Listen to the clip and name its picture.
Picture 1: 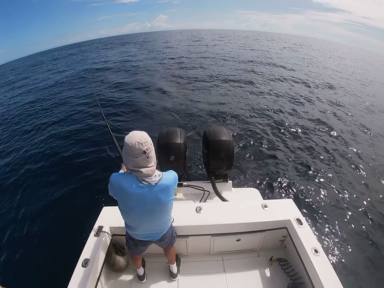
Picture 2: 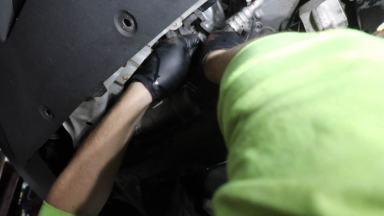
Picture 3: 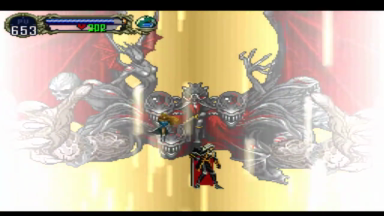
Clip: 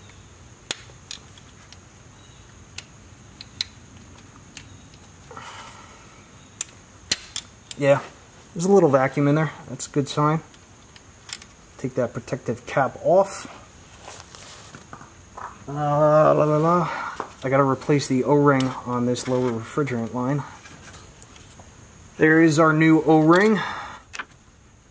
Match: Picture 2